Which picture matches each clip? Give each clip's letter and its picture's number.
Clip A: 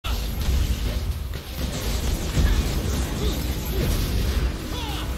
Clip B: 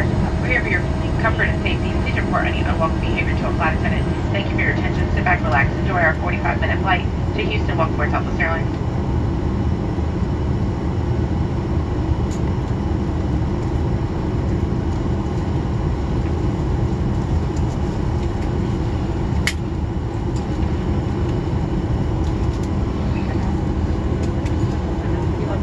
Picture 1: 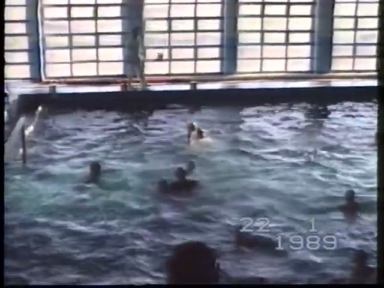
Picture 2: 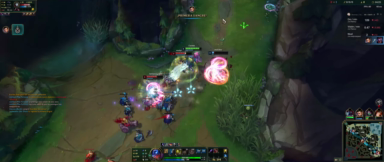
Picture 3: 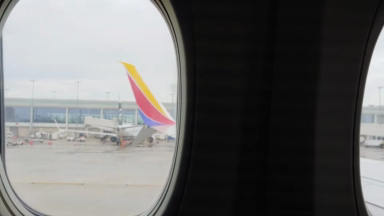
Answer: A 2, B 3